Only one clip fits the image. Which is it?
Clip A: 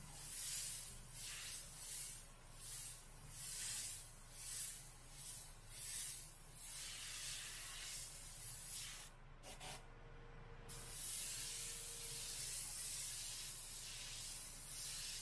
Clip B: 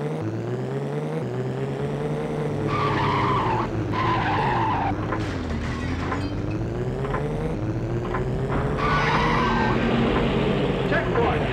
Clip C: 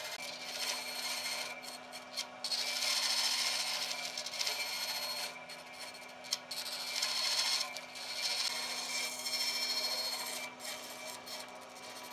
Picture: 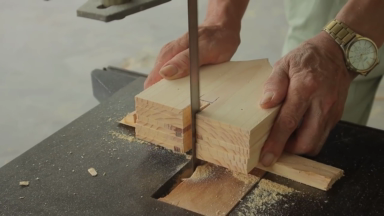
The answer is C